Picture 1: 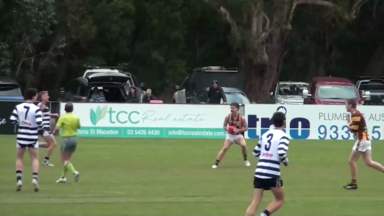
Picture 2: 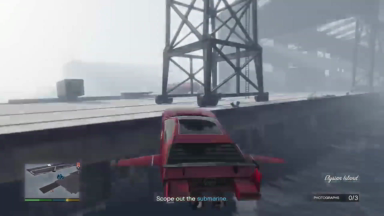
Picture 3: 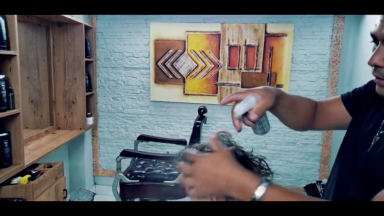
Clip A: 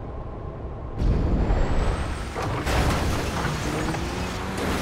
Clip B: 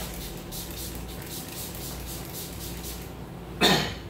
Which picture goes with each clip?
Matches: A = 2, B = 3